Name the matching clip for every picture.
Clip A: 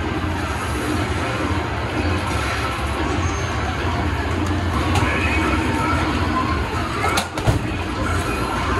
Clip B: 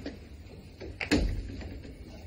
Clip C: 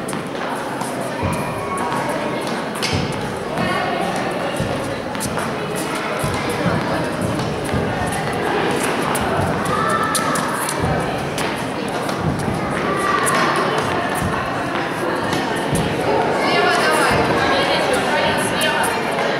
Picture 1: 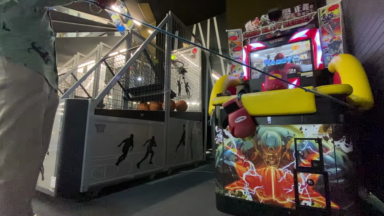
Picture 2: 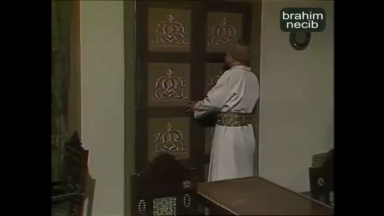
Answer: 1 A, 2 B